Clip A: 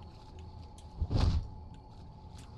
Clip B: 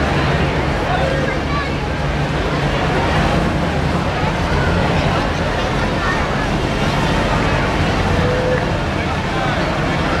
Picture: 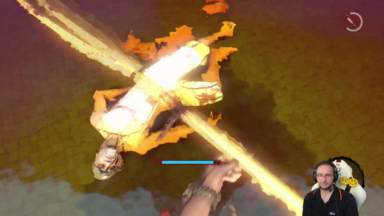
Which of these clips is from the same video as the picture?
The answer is A